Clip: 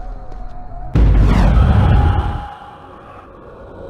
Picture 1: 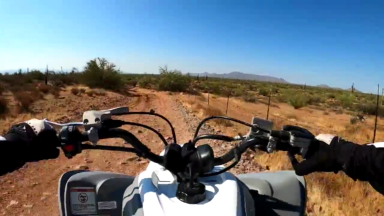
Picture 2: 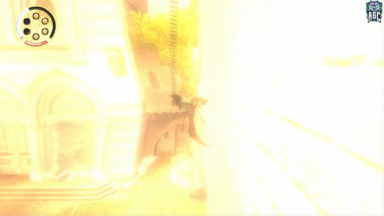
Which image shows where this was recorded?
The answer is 2